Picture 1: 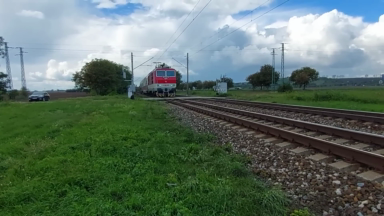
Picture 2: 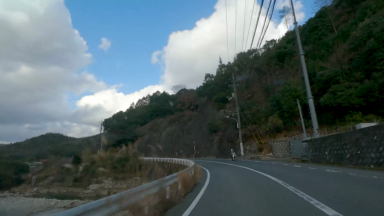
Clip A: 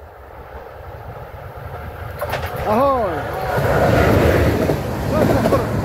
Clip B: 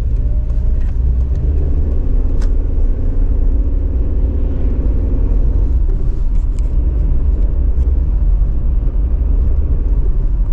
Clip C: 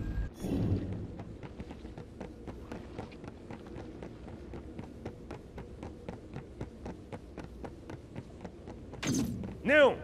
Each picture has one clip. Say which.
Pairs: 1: A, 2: B